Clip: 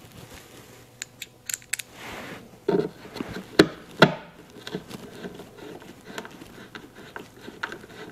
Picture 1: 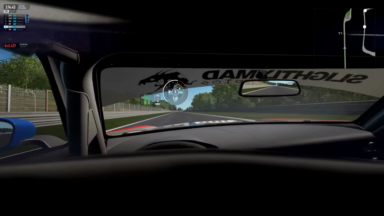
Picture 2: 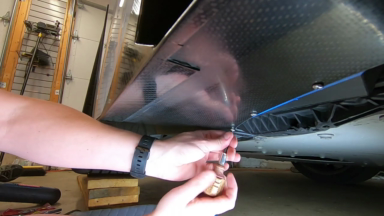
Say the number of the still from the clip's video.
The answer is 2